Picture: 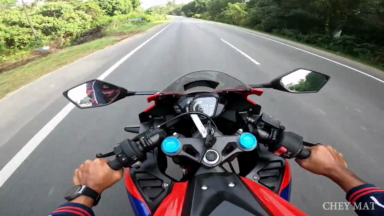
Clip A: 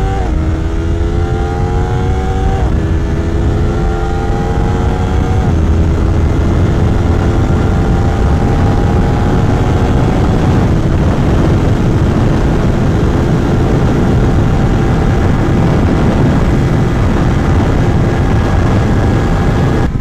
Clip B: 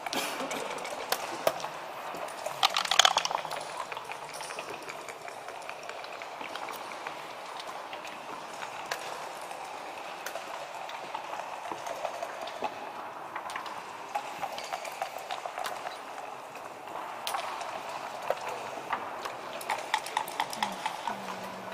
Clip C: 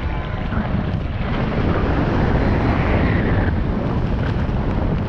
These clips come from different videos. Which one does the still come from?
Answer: A